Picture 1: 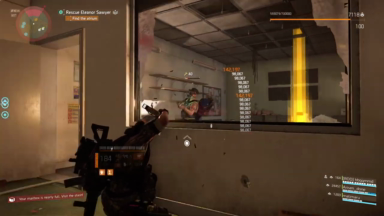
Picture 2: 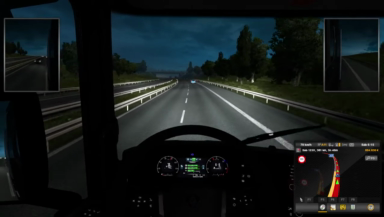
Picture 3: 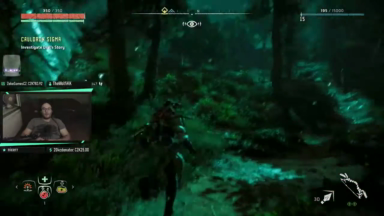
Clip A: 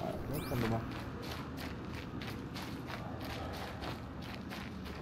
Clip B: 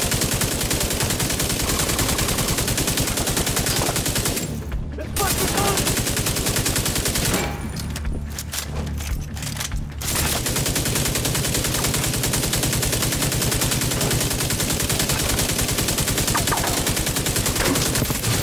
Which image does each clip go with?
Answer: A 3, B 1